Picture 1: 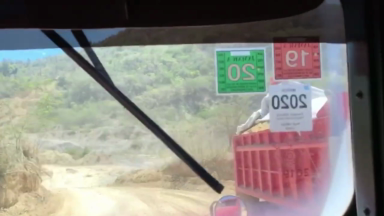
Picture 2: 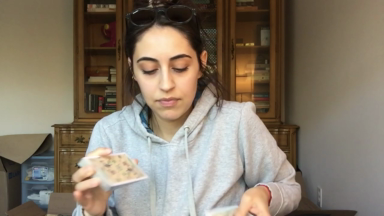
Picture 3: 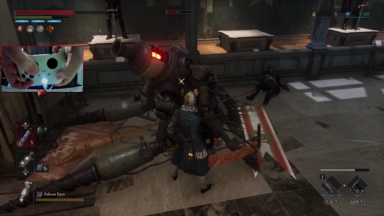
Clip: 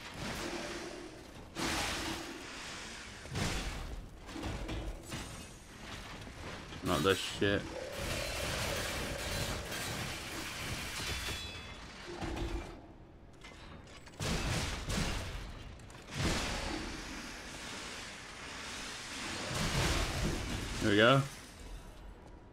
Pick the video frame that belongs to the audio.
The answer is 3